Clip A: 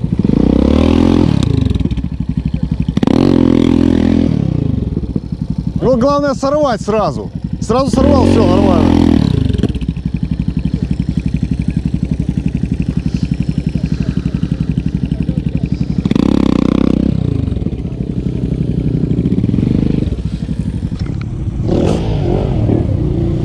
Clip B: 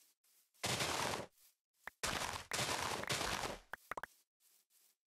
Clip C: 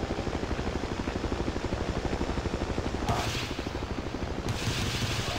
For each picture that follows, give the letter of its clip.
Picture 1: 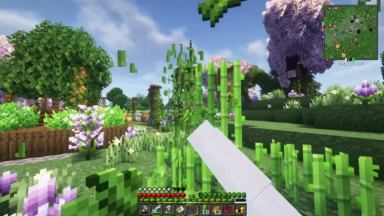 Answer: B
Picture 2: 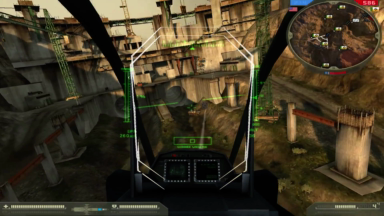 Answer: C